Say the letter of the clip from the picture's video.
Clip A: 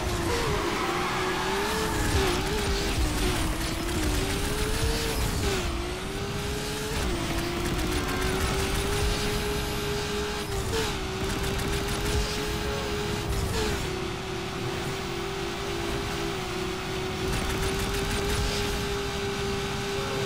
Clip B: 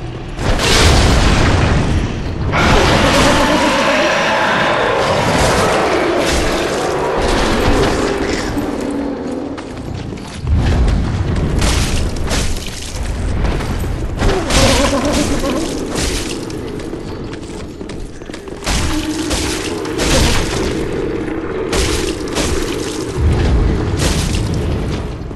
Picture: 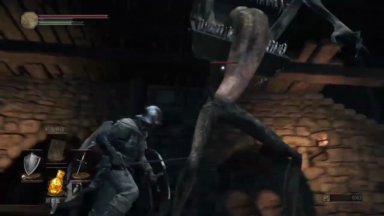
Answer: B